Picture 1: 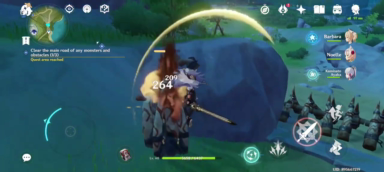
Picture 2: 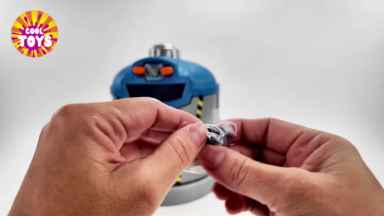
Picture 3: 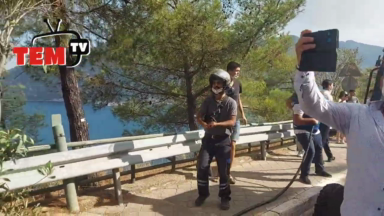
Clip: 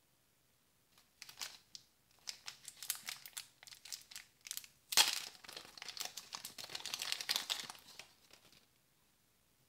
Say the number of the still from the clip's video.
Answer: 2